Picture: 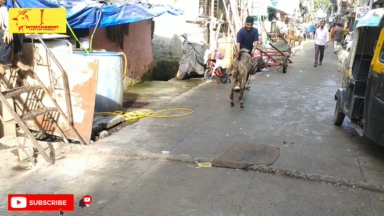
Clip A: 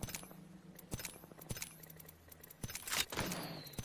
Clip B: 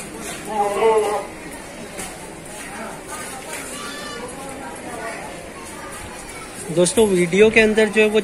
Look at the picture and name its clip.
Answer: B